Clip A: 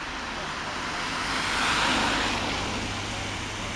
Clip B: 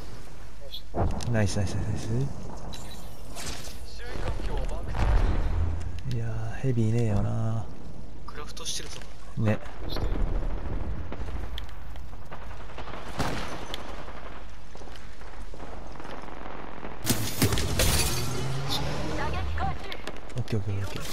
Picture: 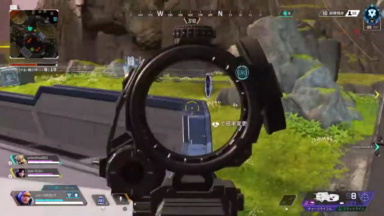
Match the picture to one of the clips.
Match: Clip B